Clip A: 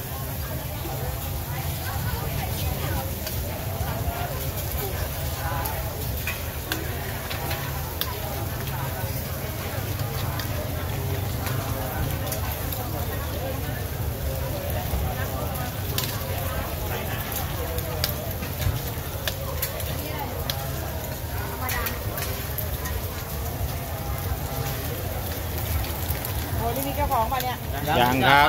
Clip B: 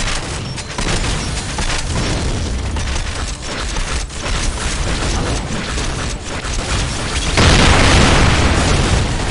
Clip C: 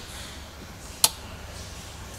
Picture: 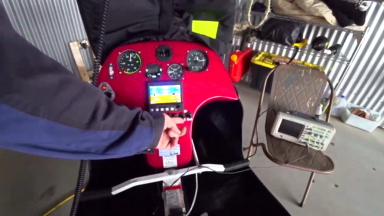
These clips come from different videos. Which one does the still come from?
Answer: C